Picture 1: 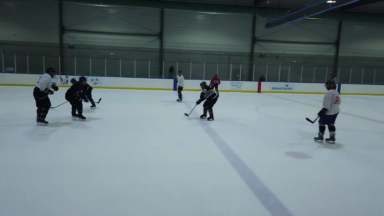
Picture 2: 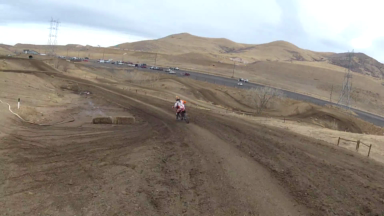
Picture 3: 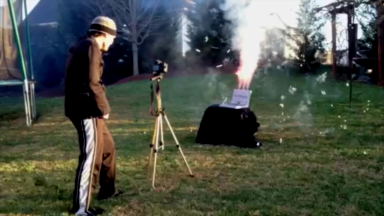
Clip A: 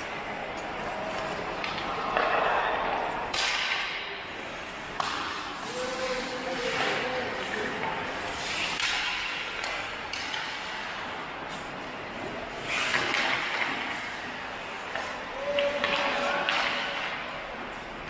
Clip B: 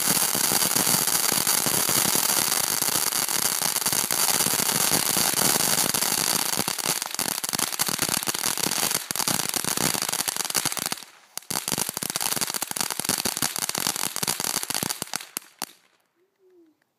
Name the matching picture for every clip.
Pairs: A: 1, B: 3